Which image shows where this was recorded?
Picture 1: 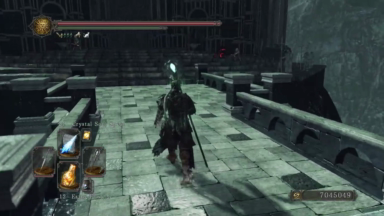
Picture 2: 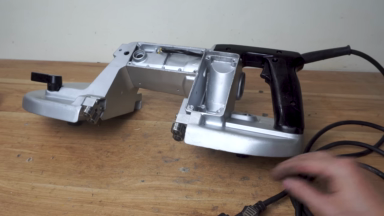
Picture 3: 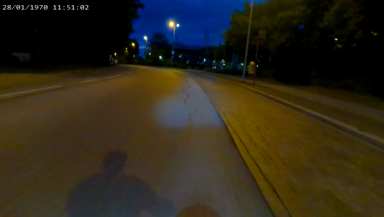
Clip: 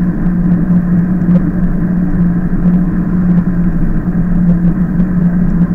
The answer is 3